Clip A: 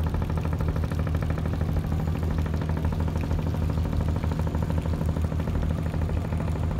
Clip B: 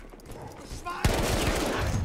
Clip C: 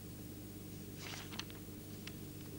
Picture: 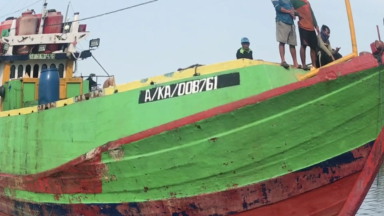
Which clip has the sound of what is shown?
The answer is A